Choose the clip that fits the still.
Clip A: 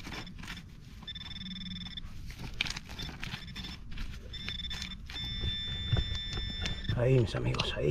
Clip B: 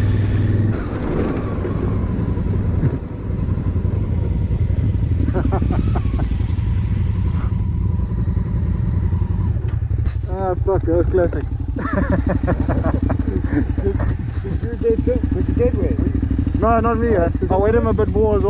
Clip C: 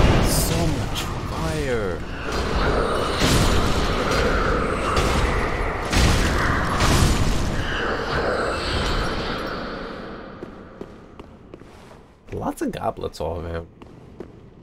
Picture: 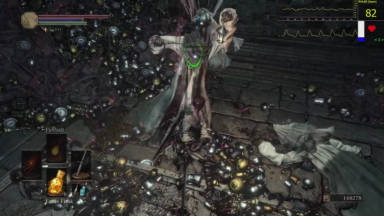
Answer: C